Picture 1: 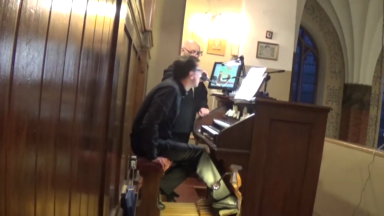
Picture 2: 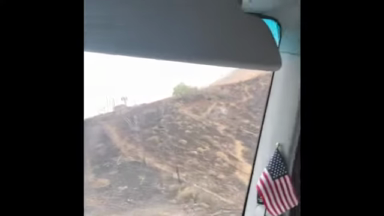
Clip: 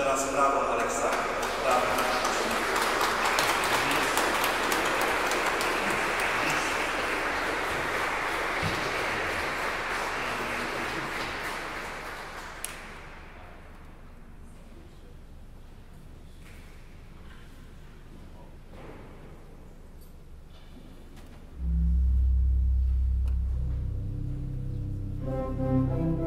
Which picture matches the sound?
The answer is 1